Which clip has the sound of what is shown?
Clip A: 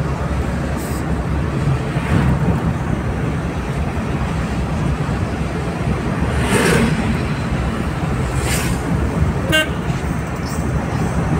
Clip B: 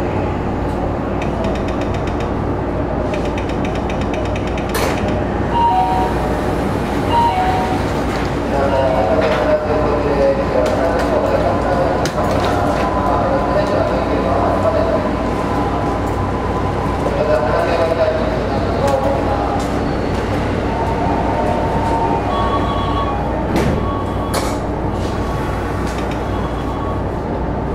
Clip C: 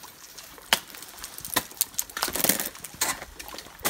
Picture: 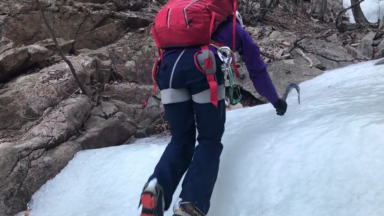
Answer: C